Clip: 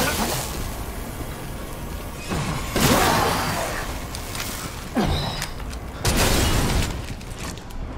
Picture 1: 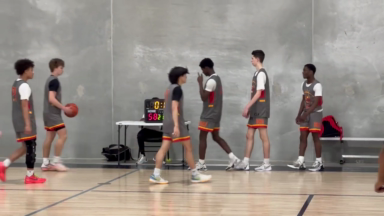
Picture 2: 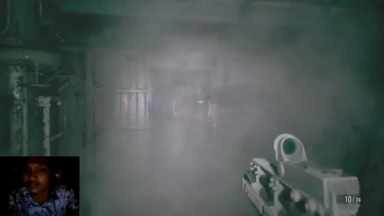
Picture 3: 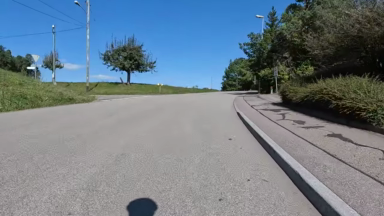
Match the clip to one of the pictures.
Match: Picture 2